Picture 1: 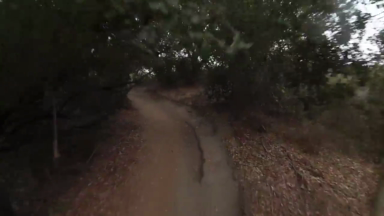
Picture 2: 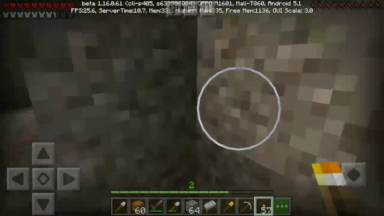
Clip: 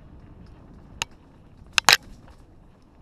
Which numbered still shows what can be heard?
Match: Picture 1